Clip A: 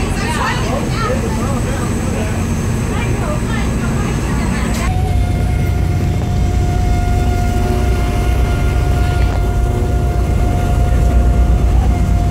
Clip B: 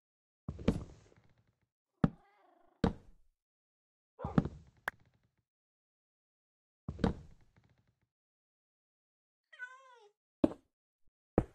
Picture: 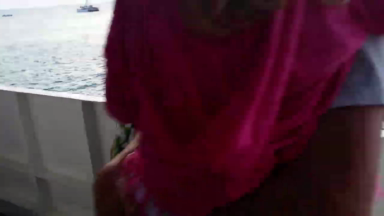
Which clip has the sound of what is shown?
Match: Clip A